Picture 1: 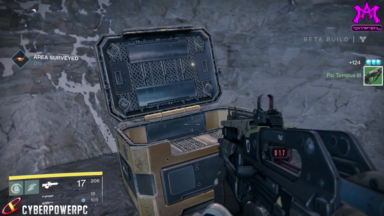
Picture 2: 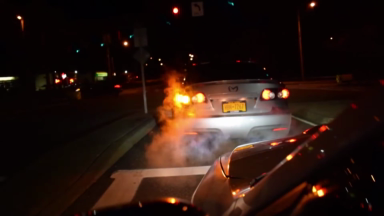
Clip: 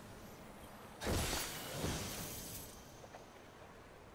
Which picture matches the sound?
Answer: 1